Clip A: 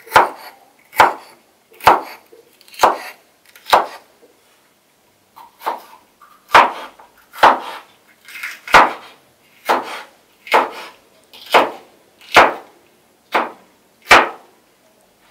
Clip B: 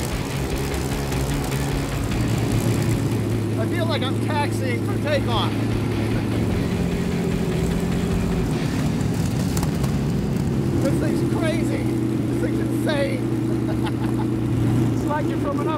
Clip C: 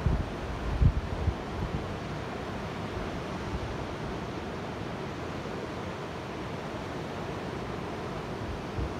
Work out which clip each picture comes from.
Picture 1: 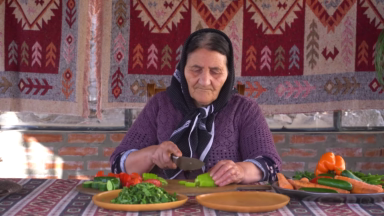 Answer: A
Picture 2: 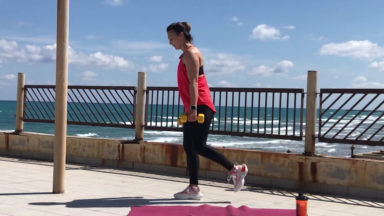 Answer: C